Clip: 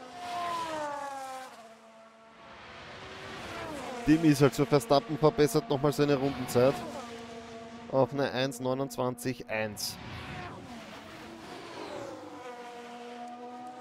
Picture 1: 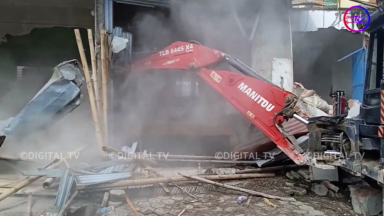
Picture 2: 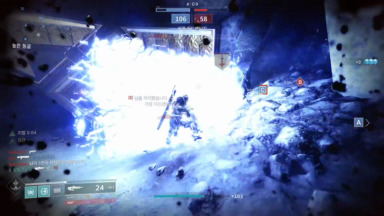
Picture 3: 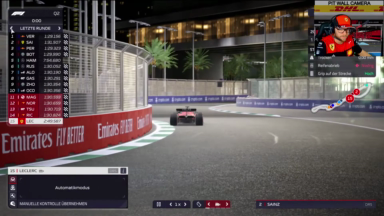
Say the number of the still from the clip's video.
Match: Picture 3